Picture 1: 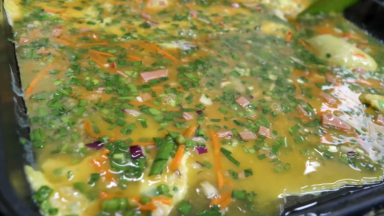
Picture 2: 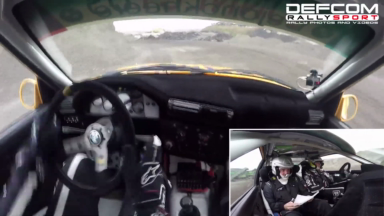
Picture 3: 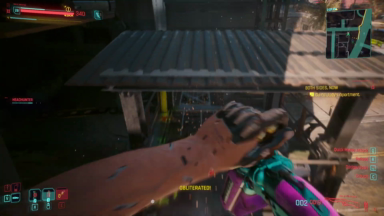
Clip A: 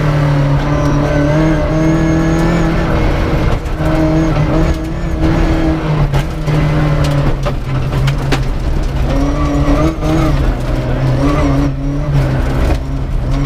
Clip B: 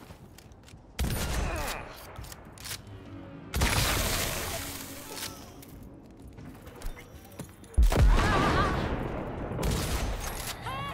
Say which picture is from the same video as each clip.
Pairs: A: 2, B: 3